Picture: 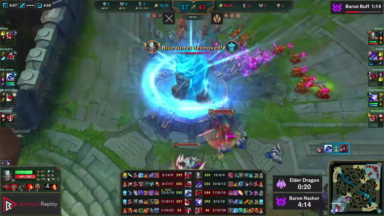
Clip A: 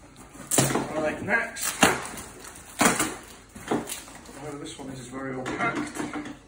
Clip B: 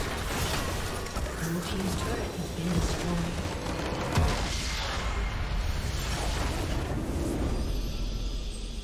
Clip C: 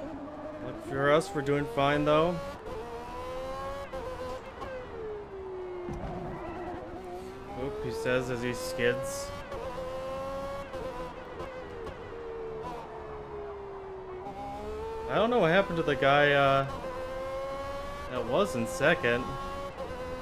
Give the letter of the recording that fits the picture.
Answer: B